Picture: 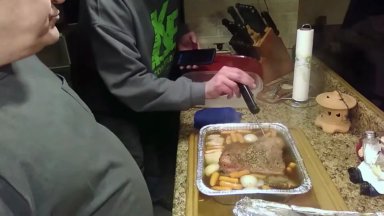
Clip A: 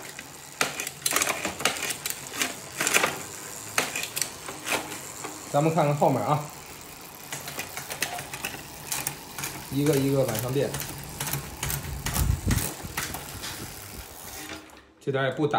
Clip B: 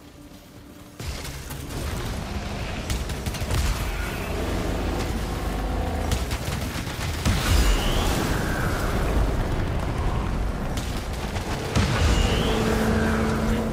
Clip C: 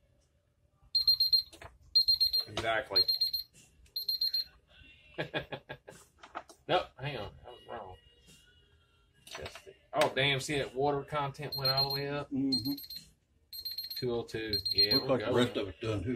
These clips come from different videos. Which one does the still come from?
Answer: C